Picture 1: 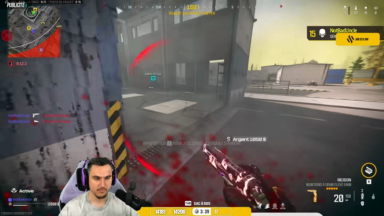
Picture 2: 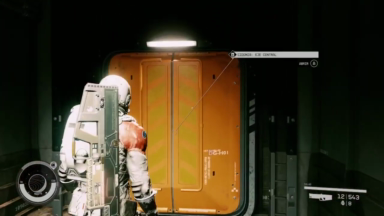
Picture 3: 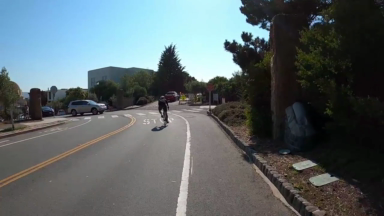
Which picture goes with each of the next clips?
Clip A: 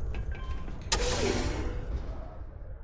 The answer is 2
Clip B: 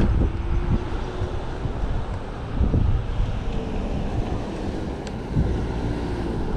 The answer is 3